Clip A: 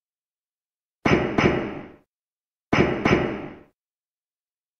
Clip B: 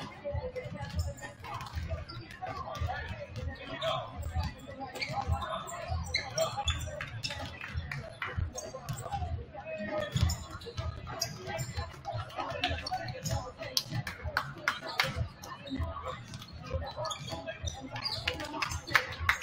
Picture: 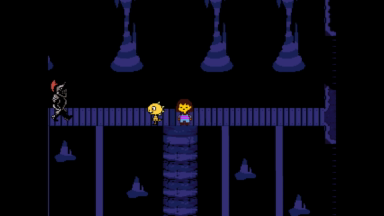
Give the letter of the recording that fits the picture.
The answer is A